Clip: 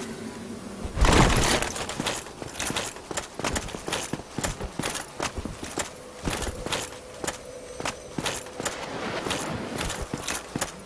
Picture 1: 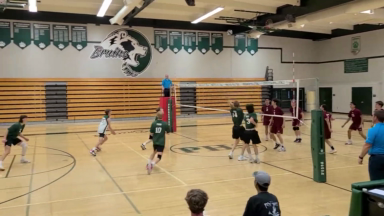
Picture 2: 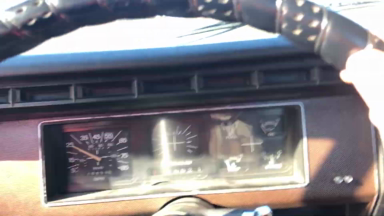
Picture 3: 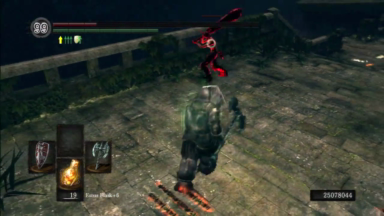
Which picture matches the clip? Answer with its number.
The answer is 3